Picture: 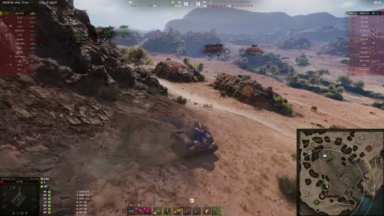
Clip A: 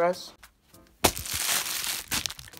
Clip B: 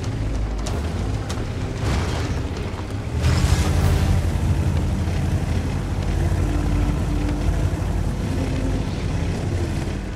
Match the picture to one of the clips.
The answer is B